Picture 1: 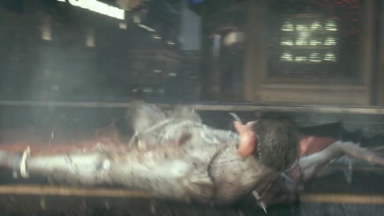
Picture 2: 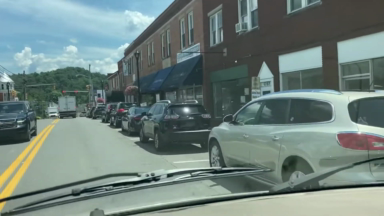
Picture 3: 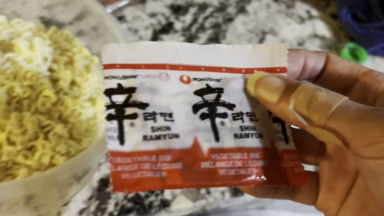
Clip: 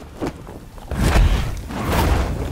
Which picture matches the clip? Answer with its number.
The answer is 1